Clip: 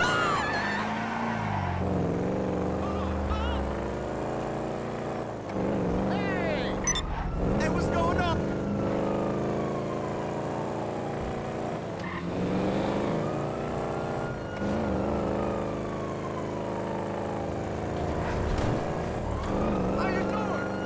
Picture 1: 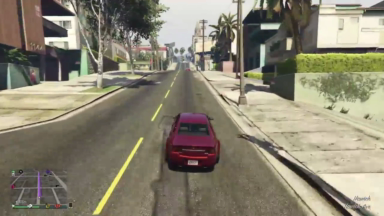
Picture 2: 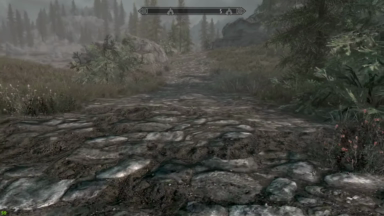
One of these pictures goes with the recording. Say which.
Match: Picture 1